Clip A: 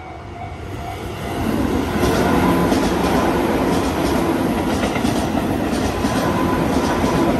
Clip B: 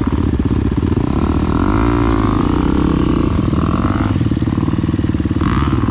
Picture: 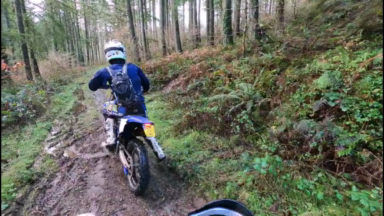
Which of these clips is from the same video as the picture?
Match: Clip B